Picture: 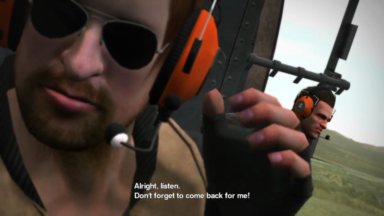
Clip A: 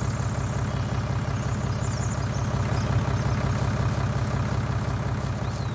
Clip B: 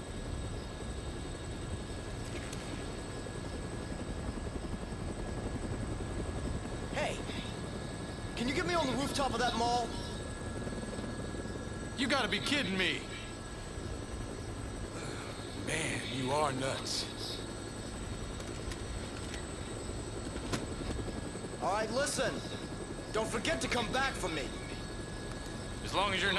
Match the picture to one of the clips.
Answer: B